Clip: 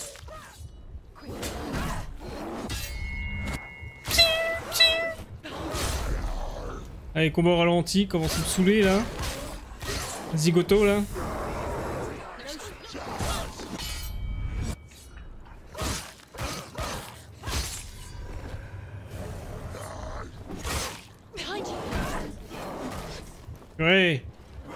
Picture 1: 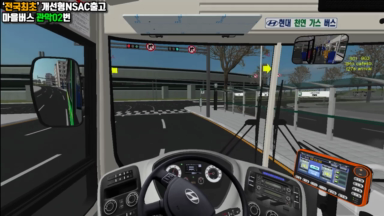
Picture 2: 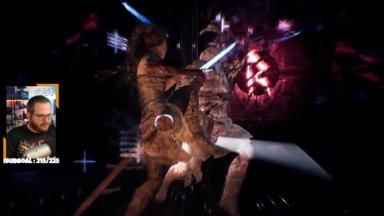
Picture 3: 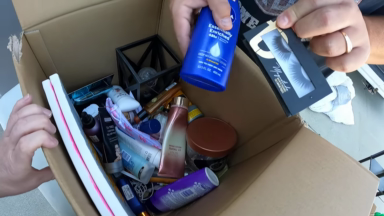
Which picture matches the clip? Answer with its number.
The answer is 2